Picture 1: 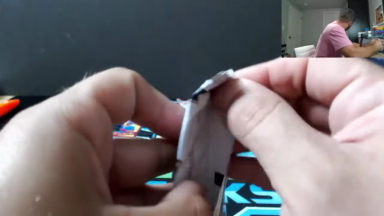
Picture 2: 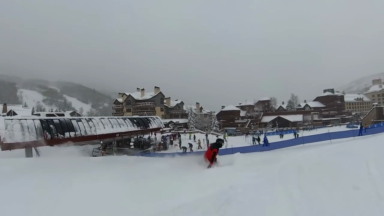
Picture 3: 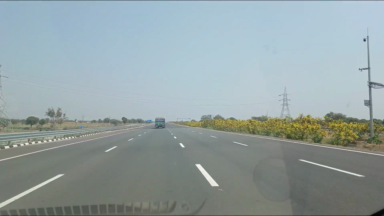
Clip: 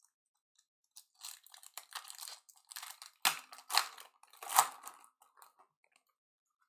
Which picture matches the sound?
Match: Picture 1